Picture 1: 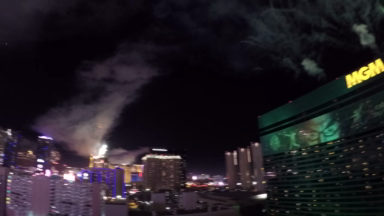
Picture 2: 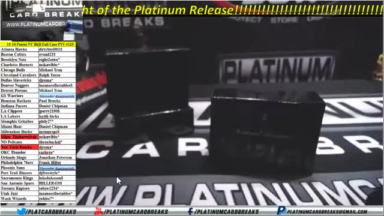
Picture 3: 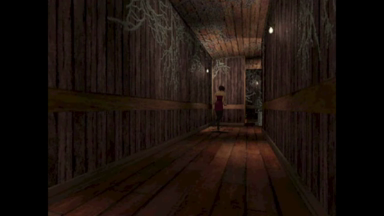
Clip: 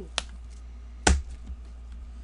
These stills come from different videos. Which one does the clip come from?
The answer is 2